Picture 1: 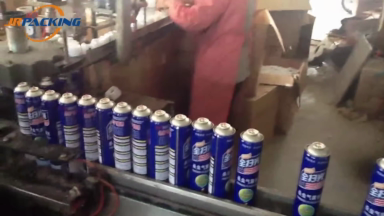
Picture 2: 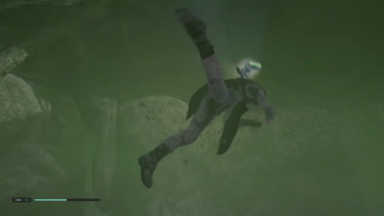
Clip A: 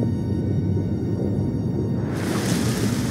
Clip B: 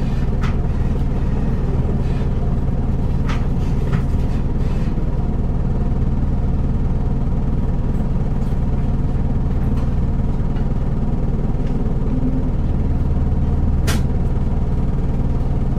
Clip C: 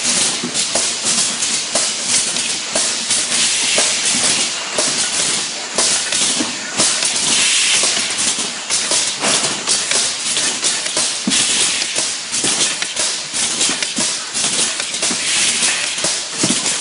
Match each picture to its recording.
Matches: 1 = C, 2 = A